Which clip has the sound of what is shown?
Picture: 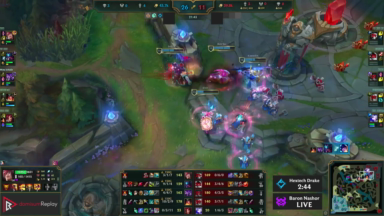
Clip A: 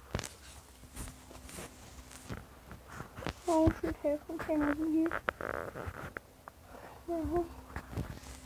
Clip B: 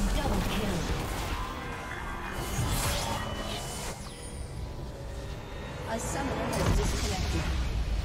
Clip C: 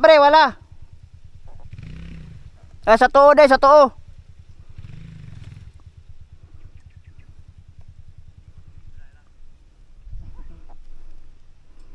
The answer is B